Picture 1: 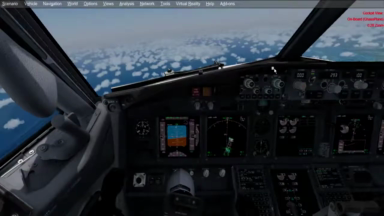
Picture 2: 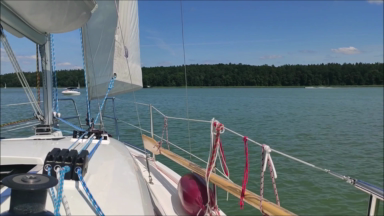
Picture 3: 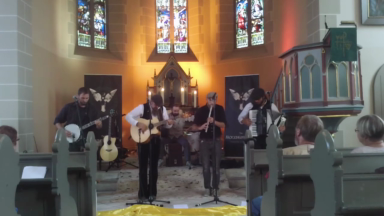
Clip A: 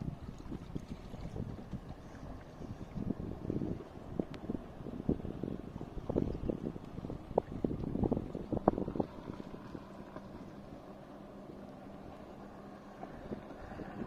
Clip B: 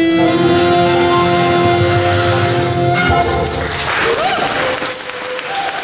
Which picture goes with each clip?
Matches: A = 2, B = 3